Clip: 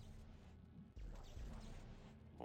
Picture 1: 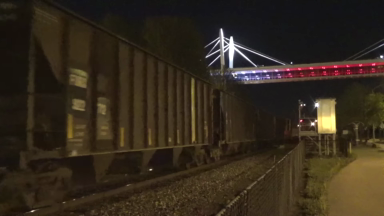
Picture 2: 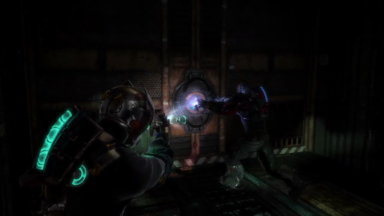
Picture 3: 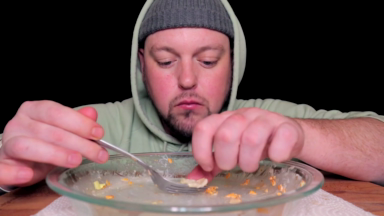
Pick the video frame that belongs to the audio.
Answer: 2